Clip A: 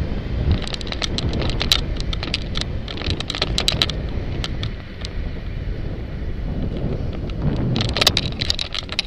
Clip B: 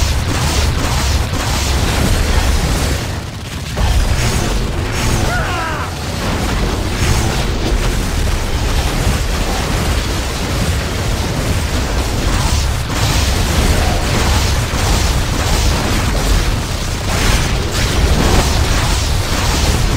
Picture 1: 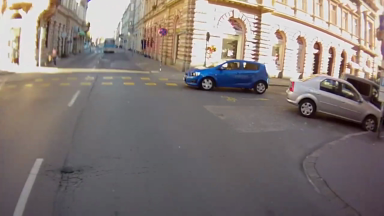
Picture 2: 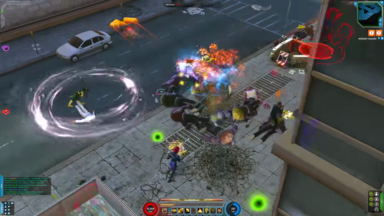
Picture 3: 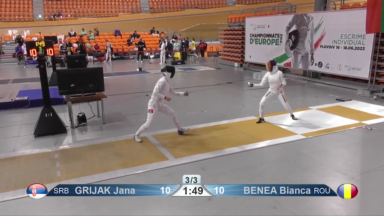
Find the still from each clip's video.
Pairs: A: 1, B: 2